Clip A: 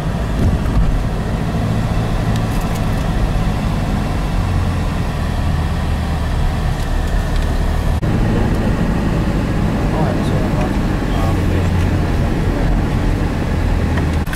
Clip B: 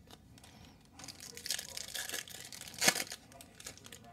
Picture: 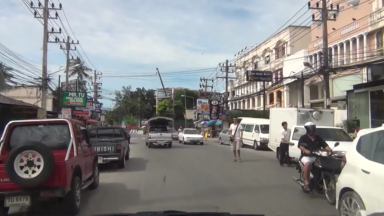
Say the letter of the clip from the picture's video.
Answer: A